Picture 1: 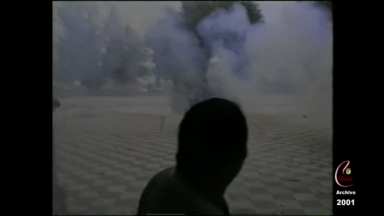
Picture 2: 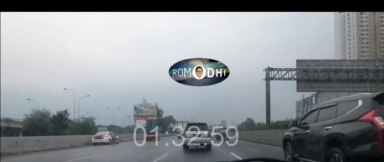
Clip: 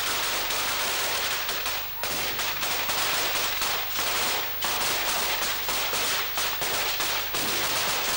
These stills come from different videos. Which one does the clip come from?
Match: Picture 1